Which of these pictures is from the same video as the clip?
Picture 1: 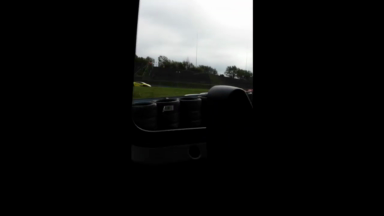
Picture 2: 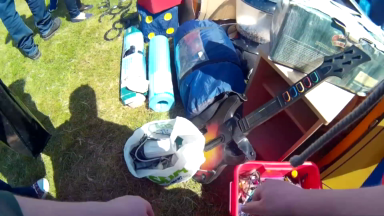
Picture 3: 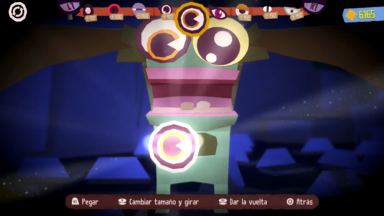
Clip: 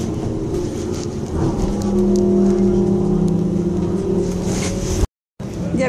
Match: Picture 1